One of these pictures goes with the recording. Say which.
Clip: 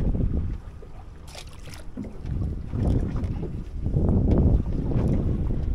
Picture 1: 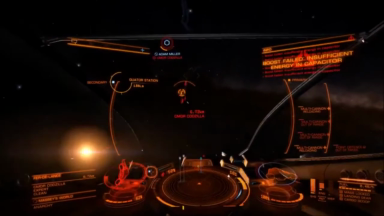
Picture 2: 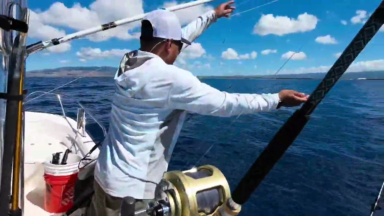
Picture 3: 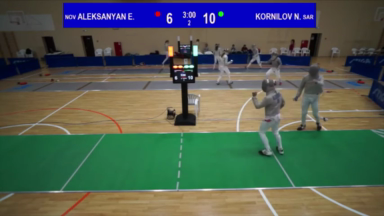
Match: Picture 2